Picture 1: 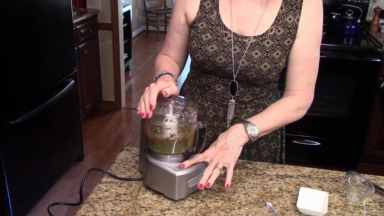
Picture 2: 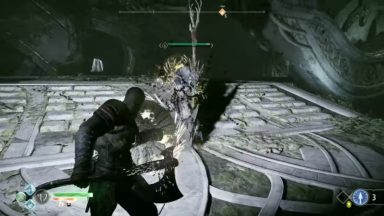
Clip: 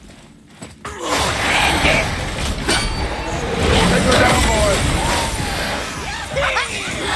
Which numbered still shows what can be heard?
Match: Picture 2